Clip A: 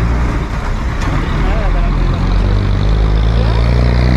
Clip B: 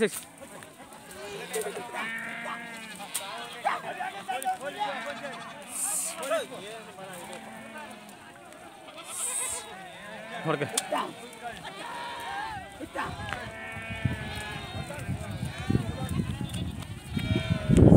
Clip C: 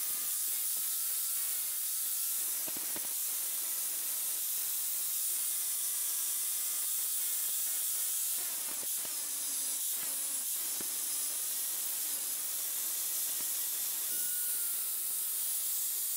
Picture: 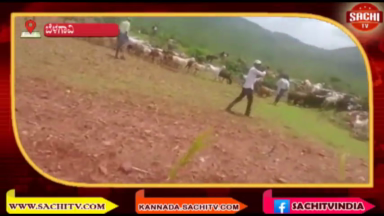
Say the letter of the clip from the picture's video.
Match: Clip B